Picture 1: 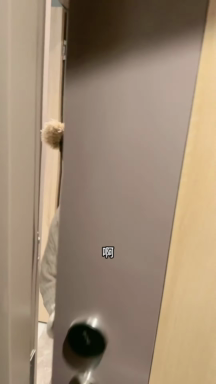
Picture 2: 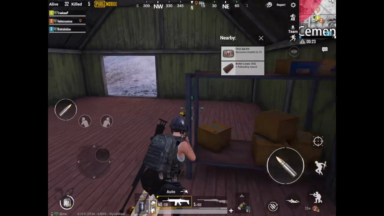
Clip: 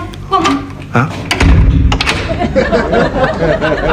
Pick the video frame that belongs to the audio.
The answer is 1